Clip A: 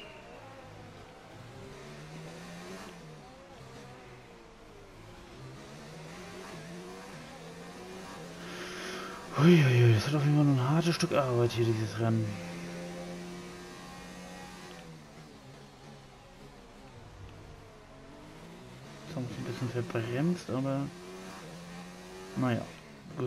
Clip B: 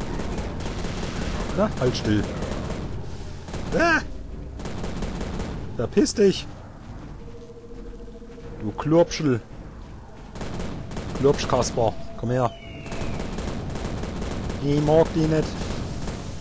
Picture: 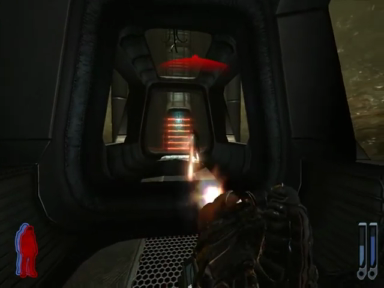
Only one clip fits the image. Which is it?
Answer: B